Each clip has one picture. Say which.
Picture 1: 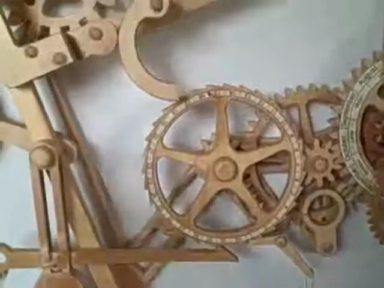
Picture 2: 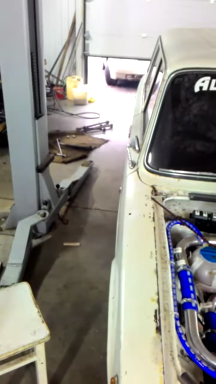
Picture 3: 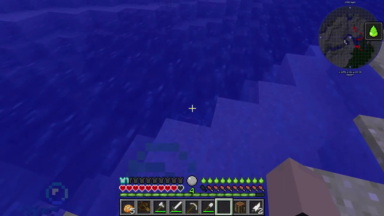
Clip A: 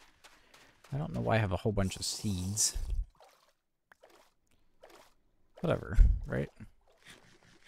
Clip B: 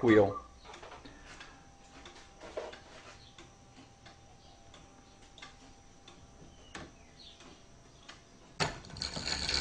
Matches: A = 3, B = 1